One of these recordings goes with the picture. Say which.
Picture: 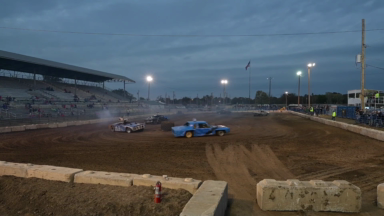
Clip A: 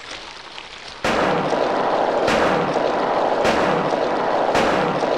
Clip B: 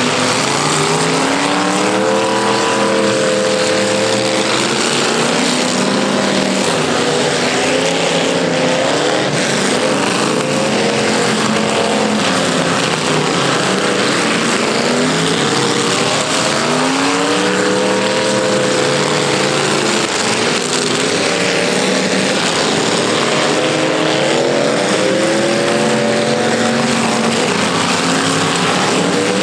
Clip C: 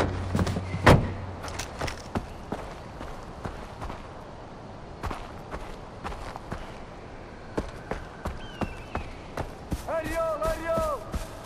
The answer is B